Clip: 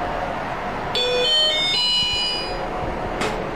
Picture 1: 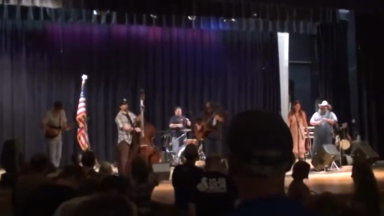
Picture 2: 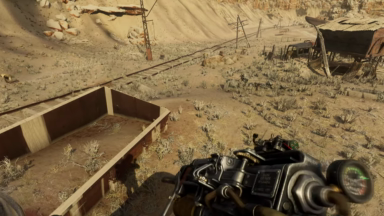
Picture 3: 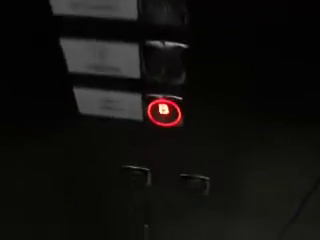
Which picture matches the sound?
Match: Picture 3